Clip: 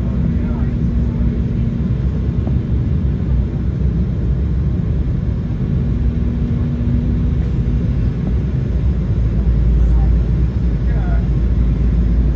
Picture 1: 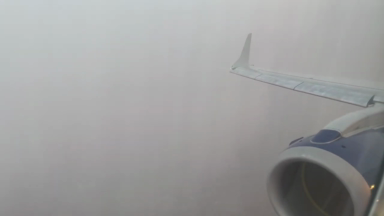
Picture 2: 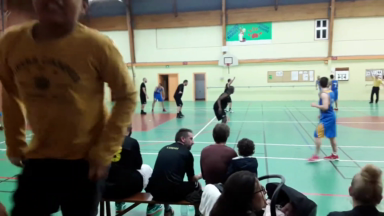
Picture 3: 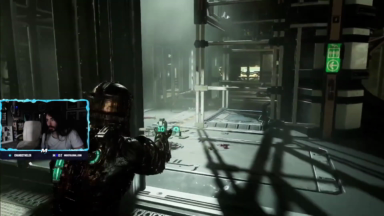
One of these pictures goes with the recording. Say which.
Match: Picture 1